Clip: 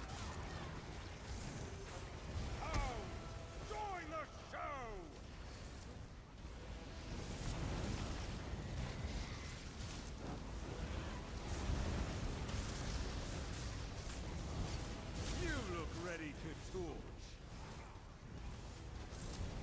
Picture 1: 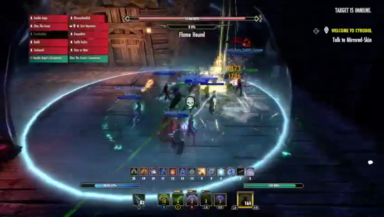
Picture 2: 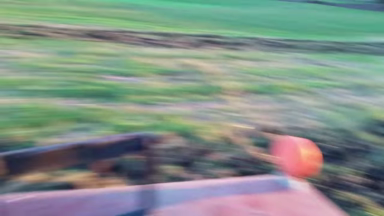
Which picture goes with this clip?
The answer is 1